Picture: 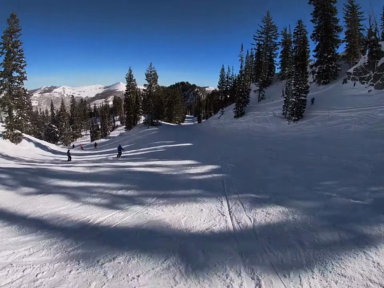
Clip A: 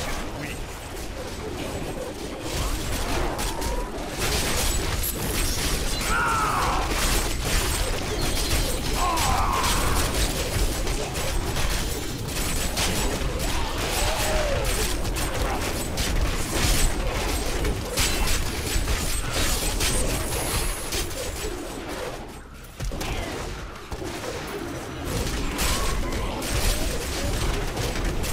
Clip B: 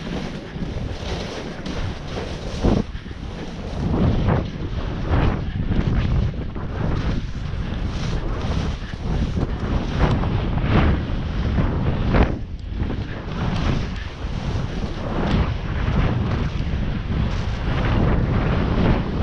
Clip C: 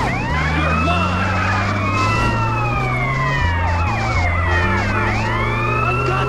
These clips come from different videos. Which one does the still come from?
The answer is B